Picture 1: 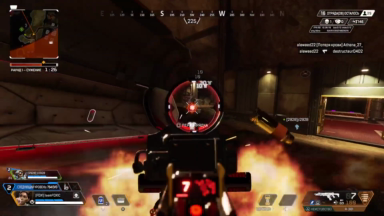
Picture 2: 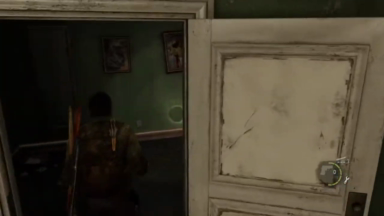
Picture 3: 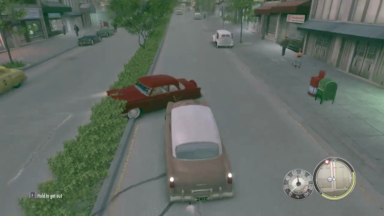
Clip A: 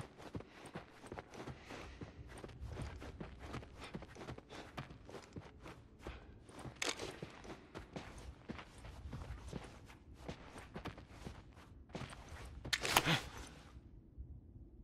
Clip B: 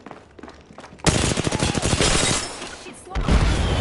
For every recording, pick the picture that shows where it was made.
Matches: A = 2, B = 1